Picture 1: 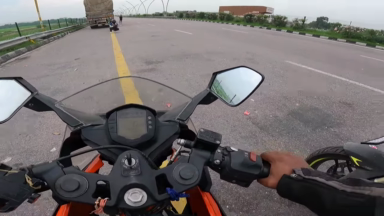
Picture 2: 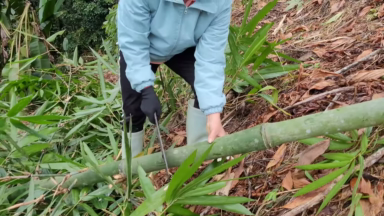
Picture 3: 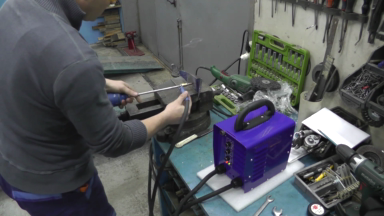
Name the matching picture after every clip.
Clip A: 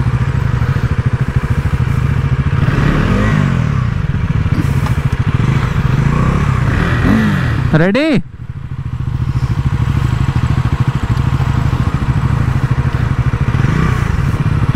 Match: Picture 1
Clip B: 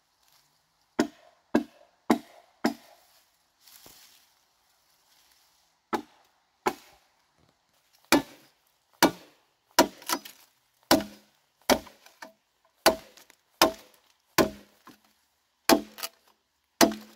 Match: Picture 2